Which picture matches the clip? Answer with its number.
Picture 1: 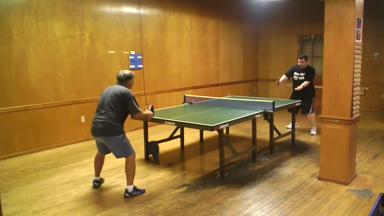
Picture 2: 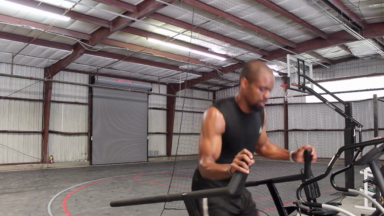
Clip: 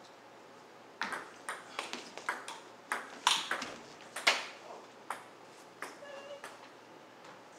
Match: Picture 1